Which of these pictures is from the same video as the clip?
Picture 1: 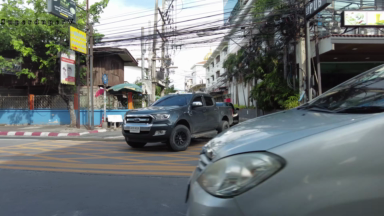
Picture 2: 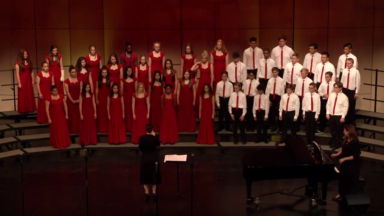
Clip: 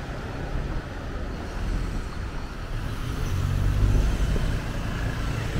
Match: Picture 1